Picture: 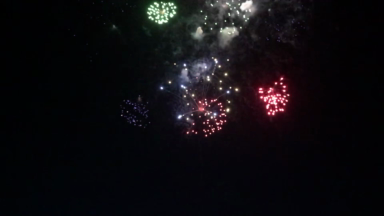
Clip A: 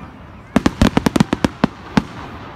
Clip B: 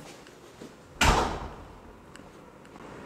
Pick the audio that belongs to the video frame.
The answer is A